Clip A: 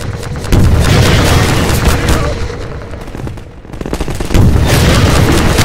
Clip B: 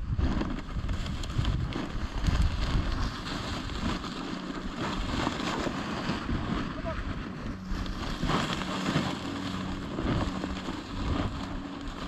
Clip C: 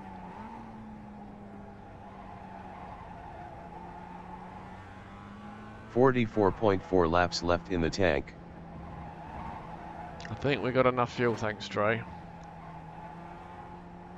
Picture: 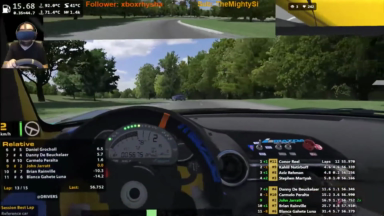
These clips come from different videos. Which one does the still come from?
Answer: C